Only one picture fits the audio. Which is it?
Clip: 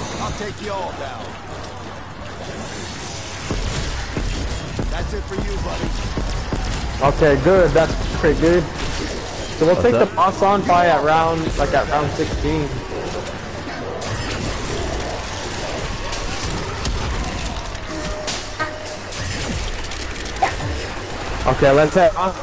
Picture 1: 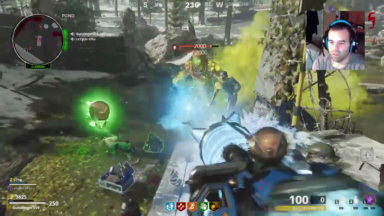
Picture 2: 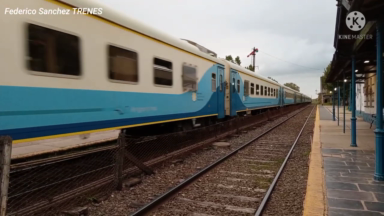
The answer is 1